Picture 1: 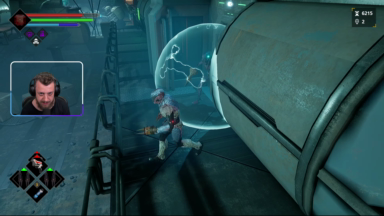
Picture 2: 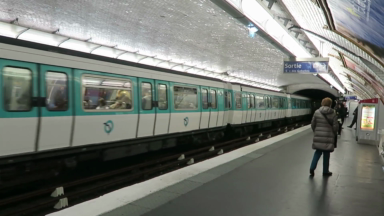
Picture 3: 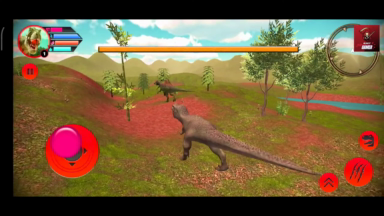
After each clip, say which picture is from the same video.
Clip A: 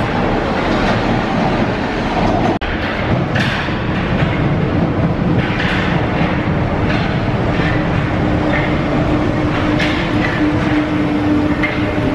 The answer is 2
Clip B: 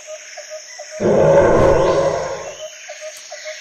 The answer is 3